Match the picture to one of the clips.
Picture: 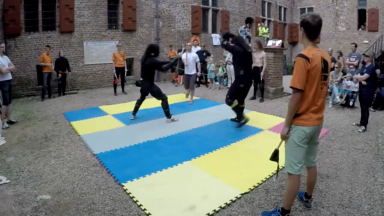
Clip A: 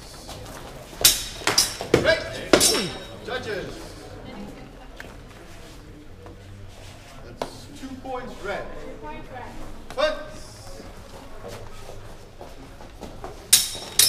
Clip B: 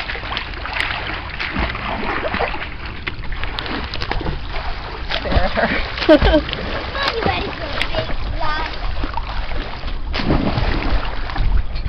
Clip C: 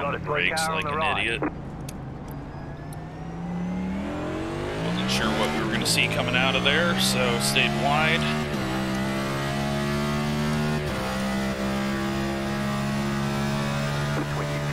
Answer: A